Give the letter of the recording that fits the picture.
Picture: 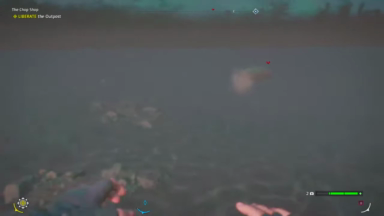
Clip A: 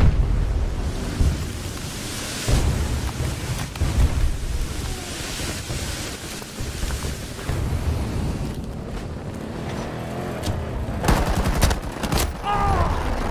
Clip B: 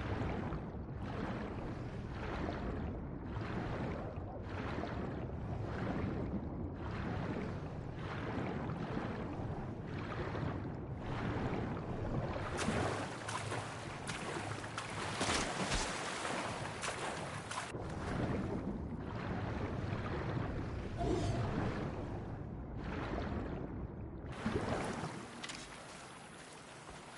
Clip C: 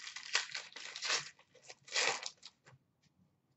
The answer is B